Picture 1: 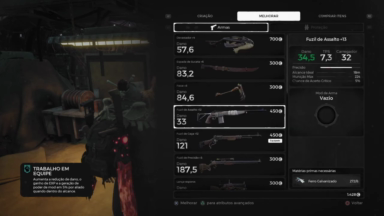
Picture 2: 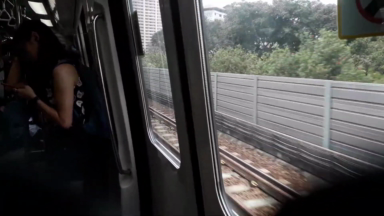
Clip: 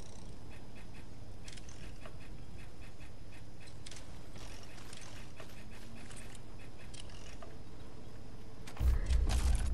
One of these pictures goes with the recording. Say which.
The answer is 1